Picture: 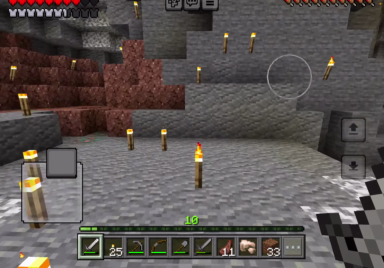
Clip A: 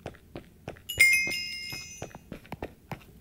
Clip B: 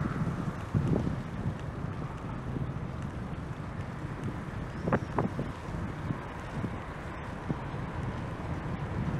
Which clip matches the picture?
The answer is A